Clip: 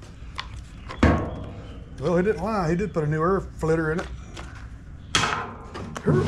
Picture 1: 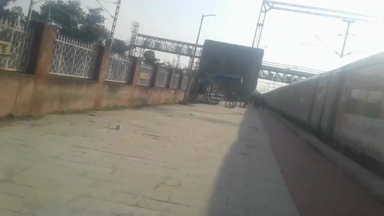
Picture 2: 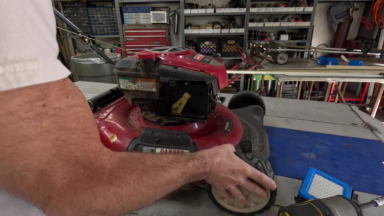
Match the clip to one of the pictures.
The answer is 2